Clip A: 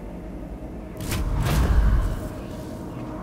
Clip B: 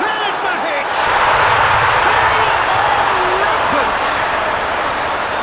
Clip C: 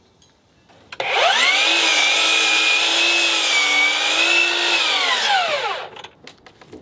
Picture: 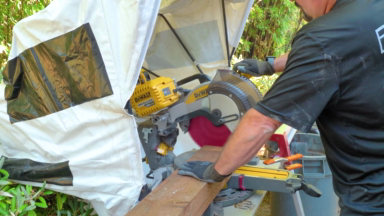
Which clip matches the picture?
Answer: C